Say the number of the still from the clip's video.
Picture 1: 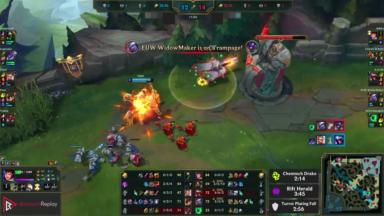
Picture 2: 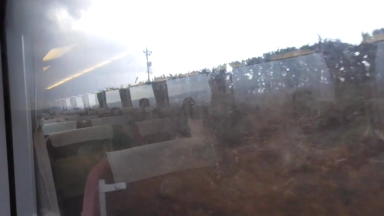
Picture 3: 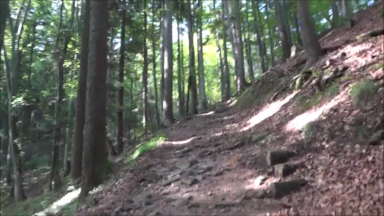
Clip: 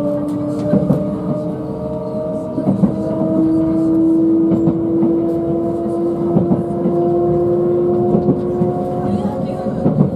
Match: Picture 2